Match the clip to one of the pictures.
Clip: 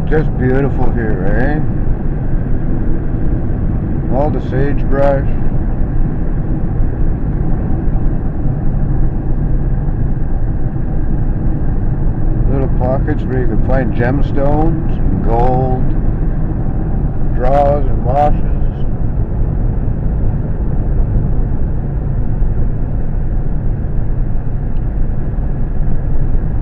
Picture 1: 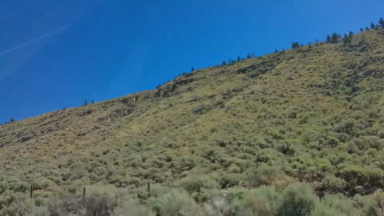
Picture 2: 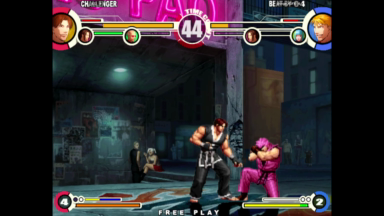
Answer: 1